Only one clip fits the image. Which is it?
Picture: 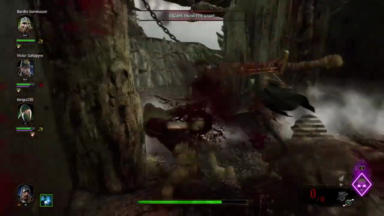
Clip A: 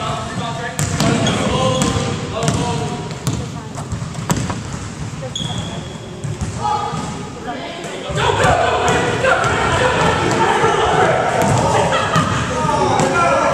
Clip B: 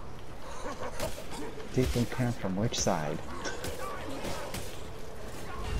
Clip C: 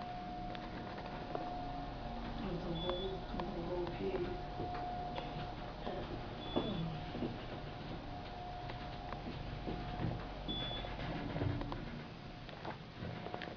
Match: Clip B